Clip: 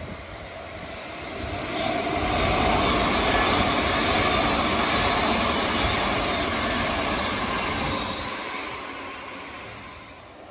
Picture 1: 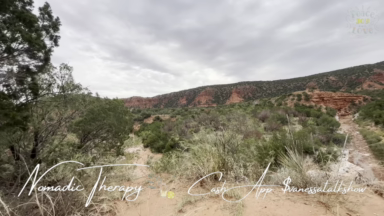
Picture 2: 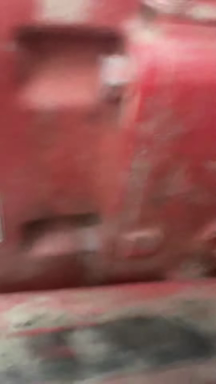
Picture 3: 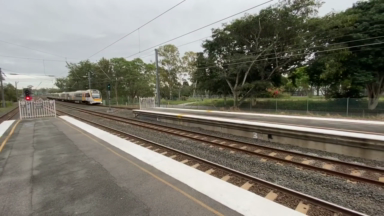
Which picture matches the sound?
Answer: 3